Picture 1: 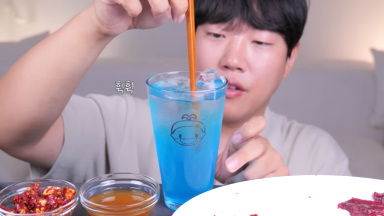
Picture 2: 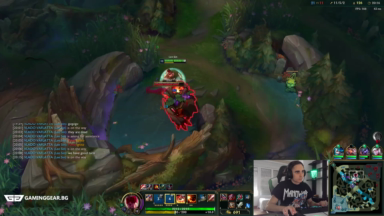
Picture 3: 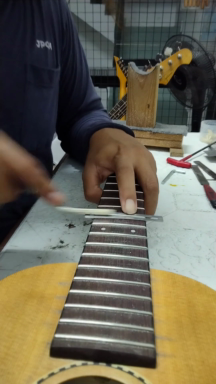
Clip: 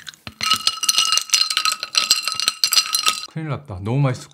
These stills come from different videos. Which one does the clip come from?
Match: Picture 1